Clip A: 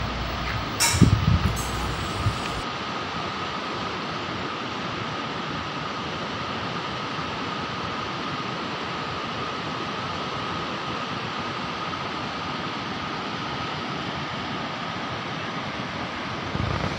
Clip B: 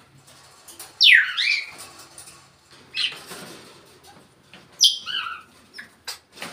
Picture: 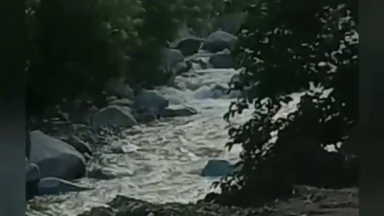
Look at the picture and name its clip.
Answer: A